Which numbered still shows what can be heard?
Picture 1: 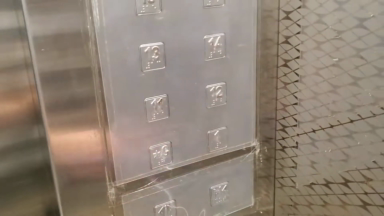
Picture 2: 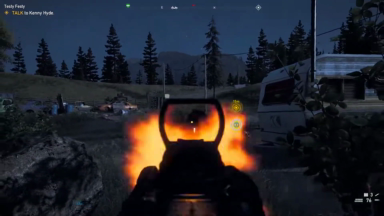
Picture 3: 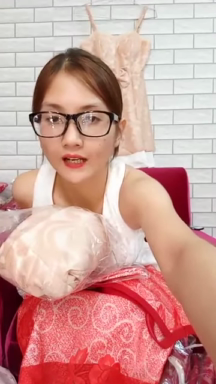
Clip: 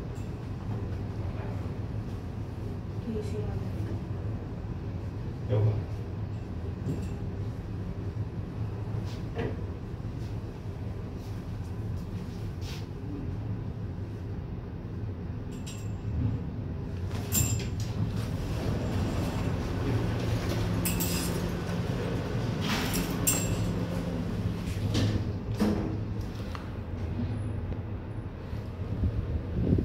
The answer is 1